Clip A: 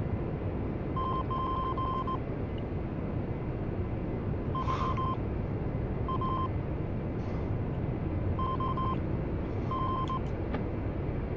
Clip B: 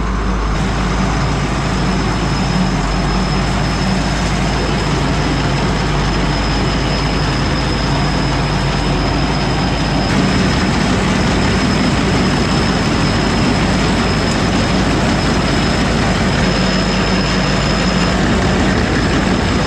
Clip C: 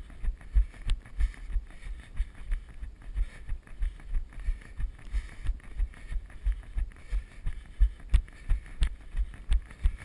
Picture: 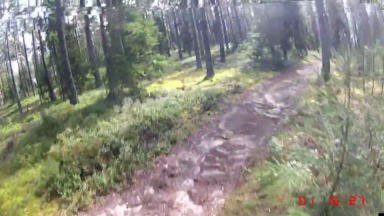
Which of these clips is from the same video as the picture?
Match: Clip C